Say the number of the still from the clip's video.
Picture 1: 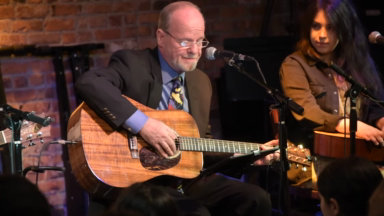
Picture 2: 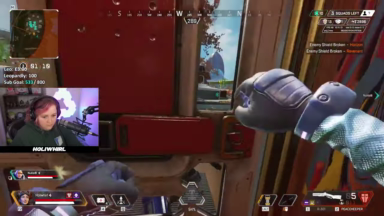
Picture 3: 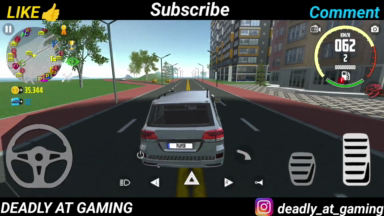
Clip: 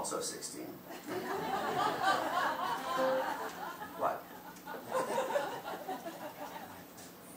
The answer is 1